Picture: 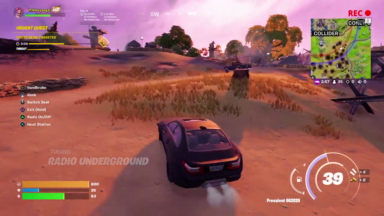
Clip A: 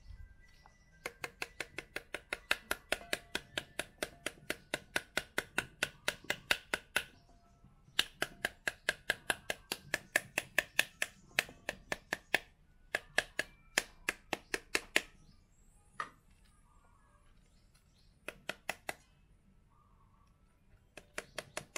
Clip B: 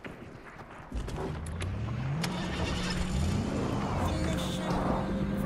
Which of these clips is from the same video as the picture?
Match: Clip B